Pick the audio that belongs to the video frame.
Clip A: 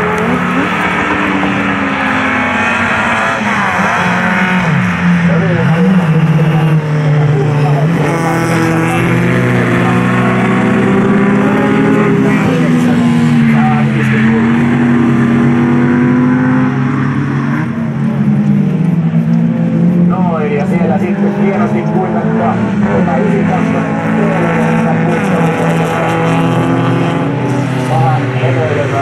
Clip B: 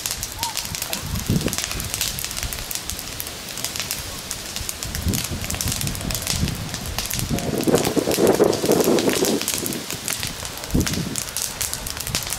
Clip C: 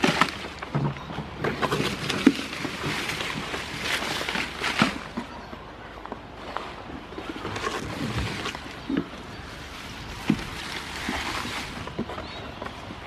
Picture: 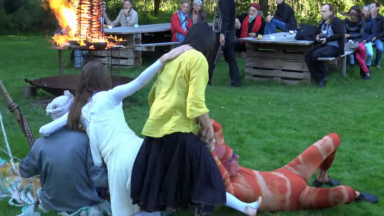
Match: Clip B